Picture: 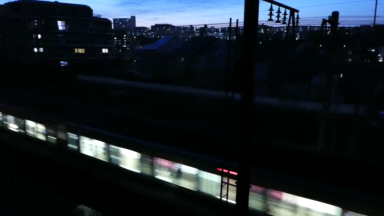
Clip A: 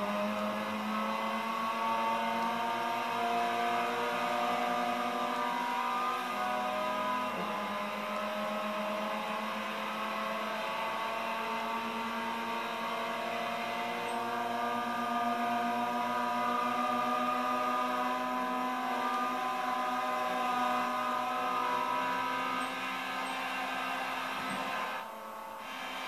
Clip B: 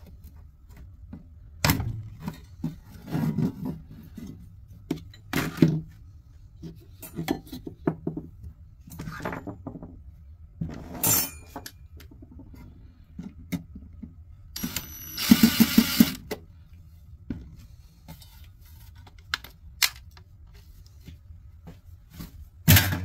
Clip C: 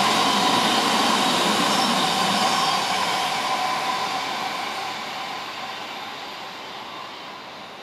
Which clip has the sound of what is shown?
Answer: C